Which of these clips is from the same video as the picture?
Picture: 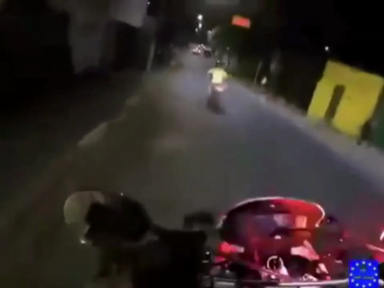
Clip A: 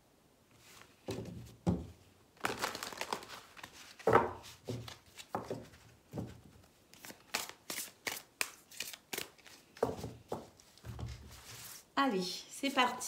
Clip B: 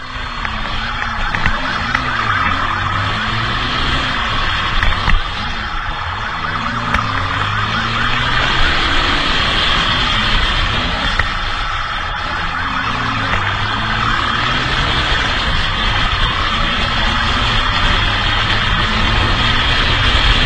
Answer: B